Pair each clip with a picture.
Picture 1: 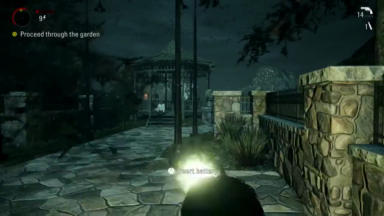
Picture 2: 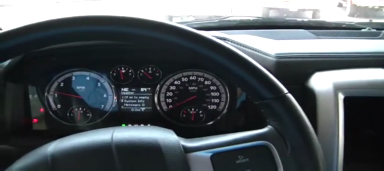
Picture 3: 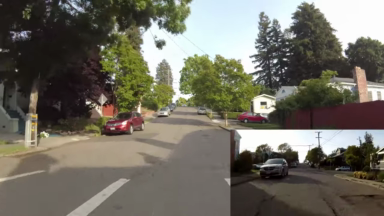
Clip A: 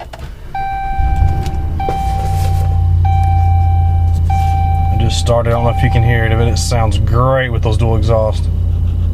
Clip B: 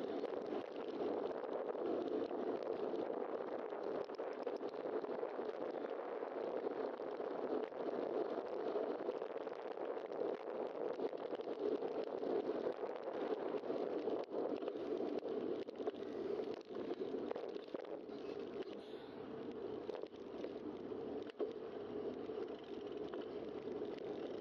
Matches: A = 2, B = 3